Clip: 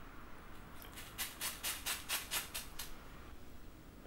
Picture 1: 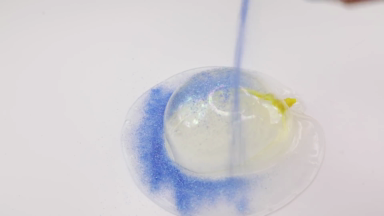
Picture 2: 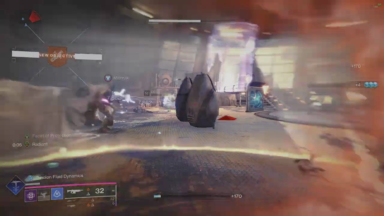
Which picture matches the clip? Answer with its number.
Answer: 1